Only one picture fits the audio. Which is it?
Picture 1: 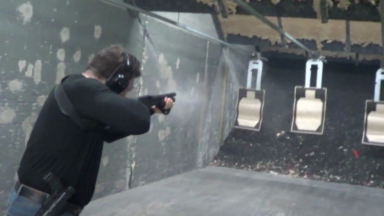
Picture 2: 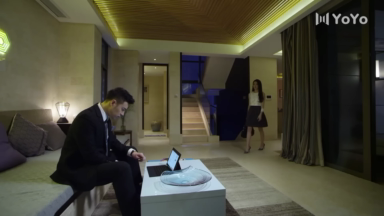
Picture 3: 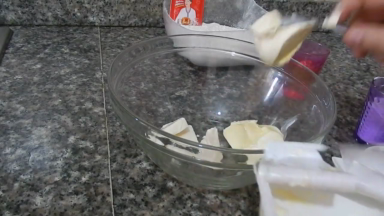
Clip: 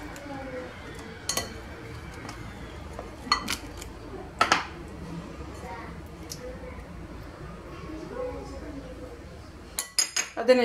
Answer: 3